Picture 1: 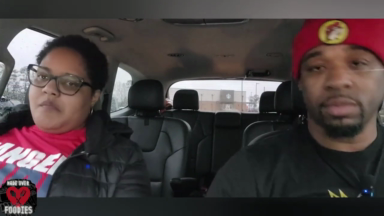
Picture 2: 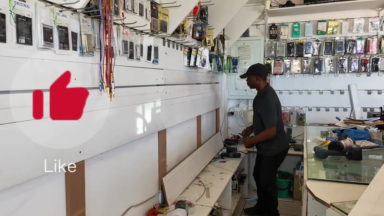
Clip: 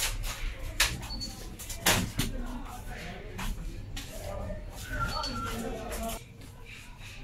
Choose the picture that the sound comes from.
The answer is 2